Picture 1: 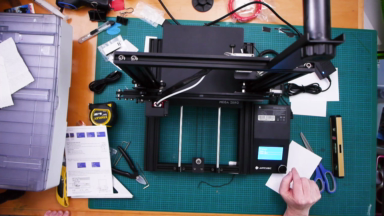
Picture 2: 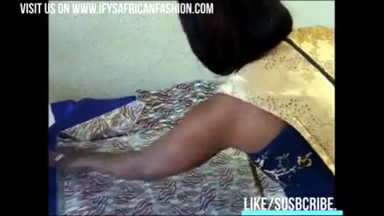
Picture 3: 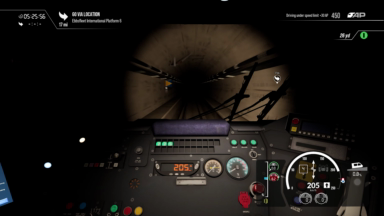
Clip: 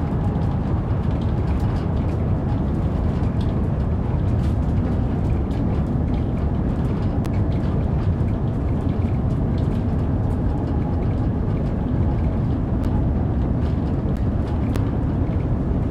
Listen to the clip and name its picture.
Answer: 3